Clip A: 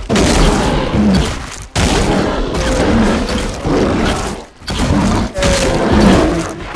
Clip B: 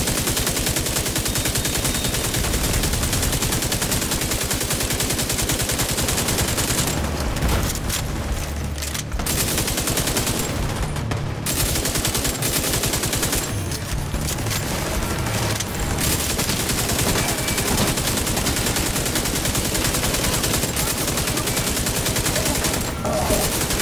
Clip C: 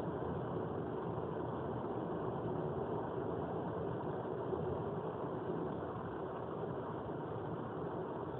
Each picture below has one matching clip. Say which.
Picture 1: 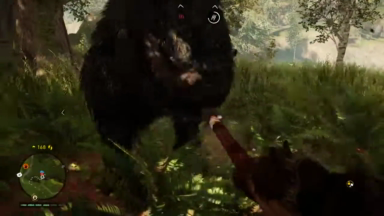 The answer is A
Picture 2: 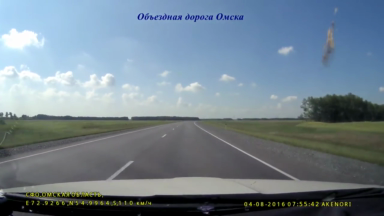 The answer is C